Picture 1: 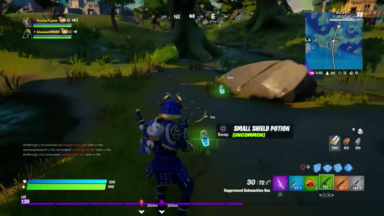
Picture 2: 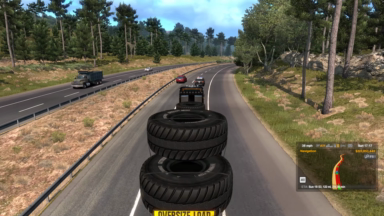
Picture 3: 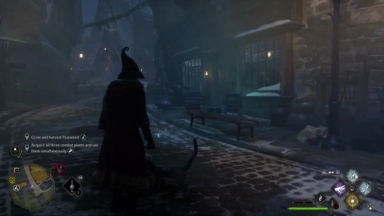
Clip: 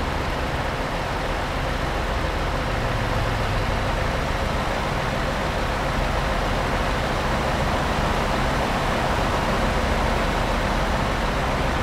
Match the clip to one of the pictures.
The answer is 2